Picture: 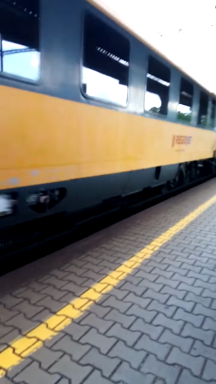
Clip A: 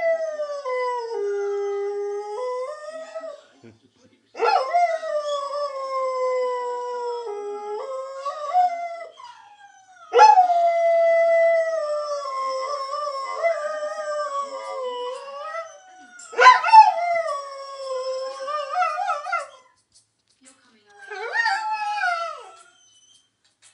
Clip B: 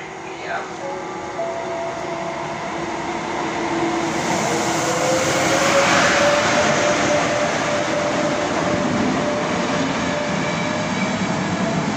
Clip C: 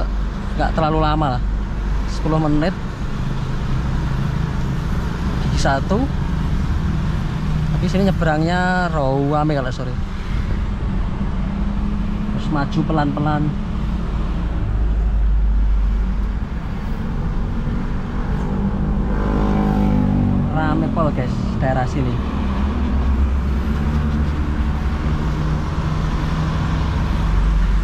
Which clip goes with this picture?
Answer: B